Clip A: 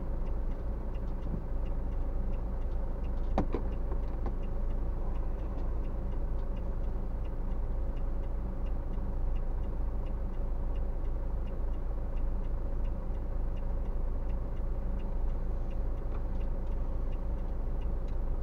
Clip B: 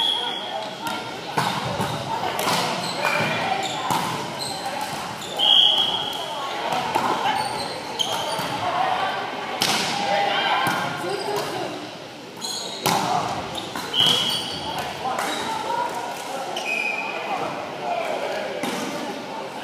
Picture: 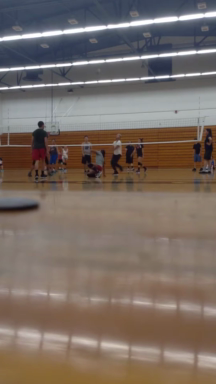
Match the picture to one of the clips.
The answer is B